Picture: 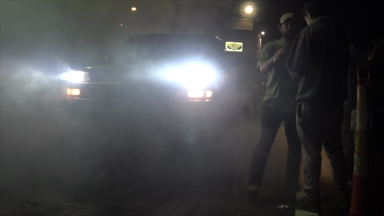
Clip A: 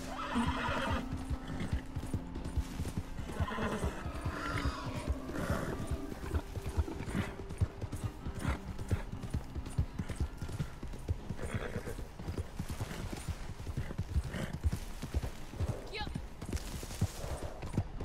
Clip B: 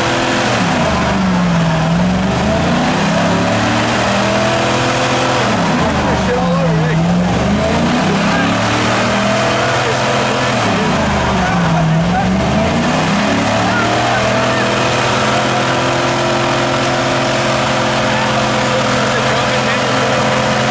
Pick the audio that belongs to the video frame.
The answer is B